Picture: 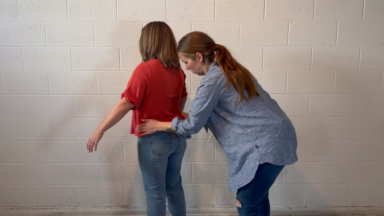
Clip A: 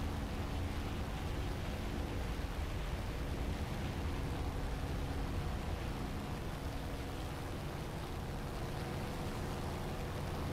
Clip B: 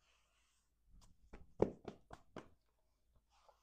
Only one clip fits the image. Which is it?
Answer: B